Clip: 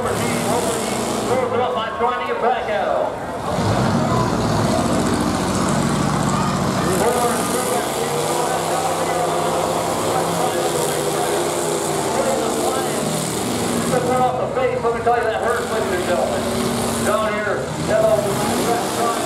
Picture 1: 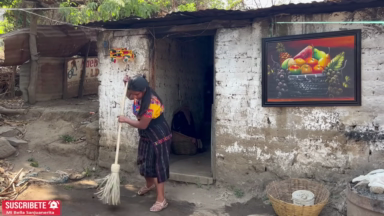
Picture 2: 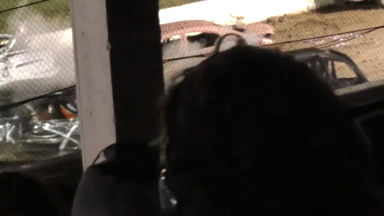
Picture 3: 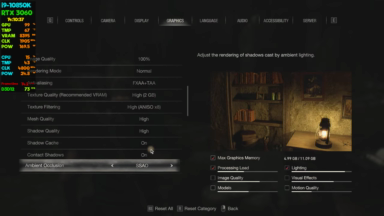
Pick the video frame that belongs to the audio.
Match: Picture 2